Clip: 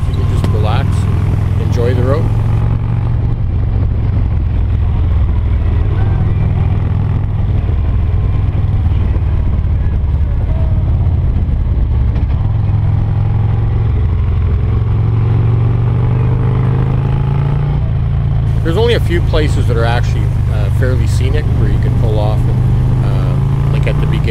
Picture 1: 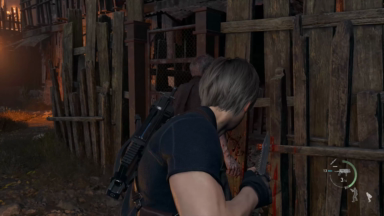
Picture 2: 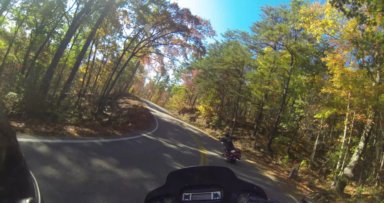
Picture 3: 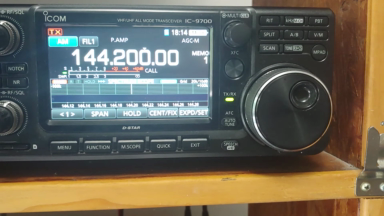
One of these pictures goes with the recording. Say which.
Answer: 2